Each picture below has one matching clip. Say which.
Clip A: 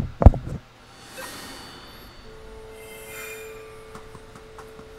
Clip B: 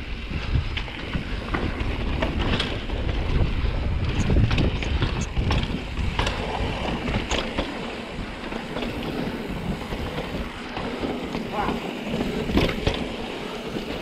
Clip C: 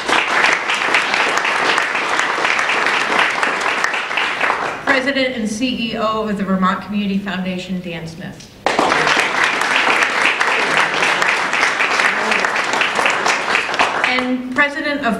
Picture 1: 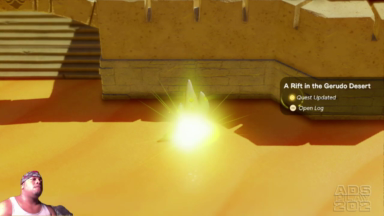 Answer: A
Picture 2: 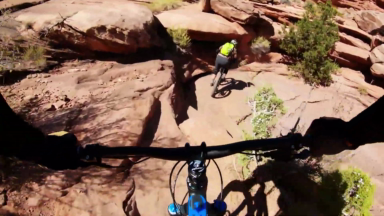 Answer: B